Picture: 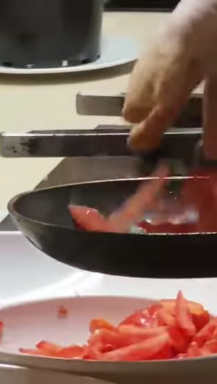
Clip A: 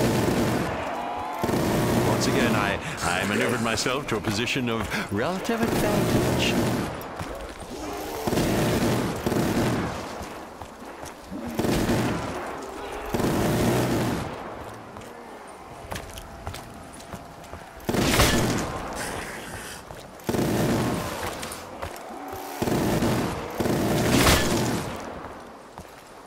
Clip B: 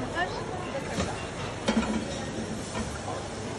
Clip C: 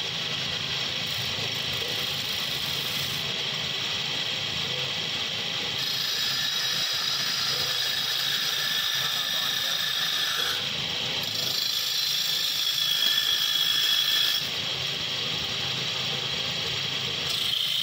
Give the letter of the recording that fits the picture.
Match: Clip B